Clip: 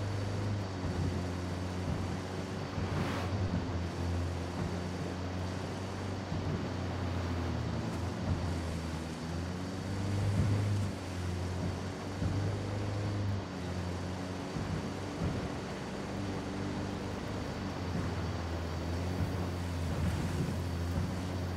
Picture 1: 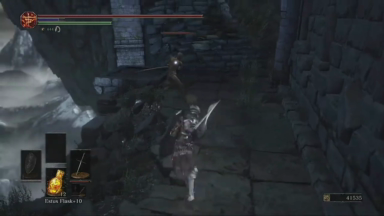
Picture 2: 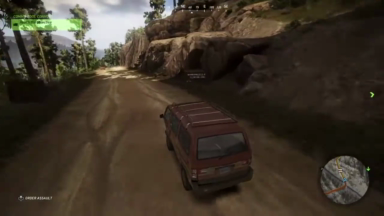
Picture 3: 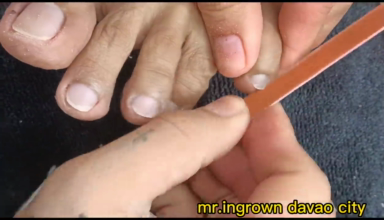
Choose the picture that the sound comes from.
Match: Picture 2